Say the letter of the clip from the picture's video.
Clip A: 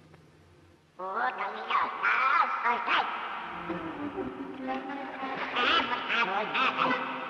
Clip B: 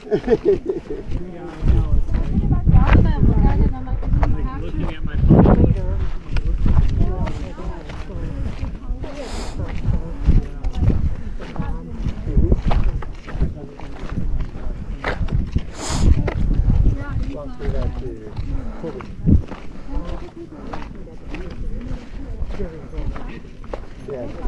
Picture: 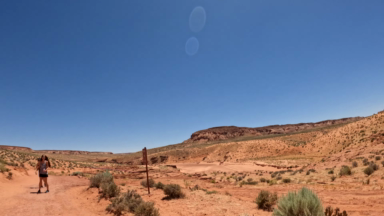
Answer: B